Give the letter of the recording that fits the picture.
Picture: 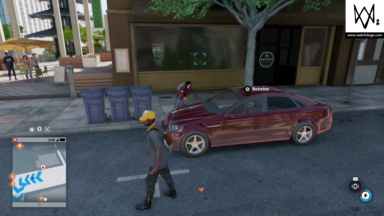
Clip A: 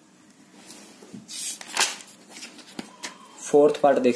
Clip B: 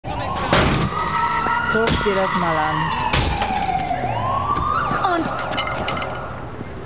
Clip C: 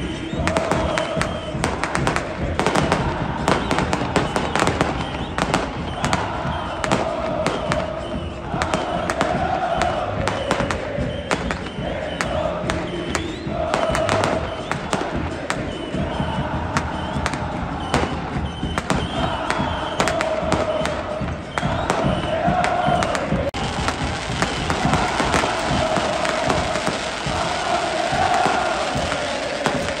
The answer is B